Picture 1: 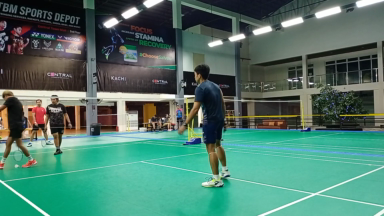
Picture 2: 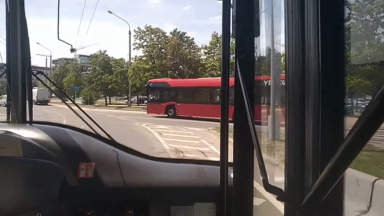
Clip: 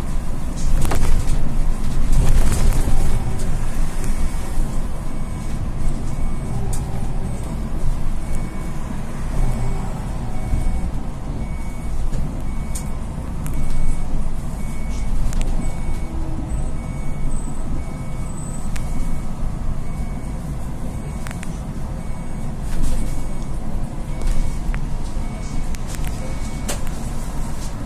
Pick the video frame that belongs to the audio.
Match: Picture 2